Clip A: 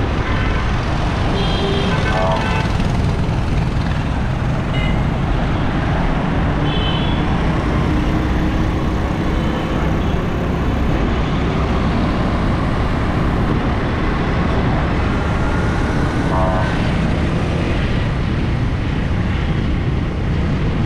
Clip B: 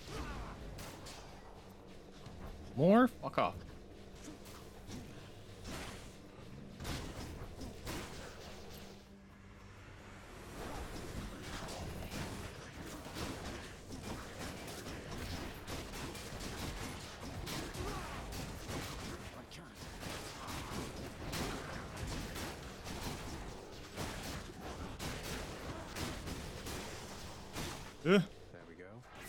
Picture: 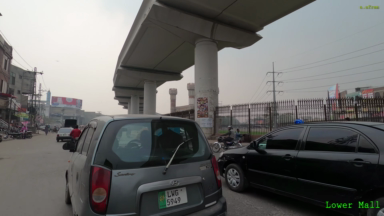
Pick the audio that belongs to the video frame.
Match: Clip A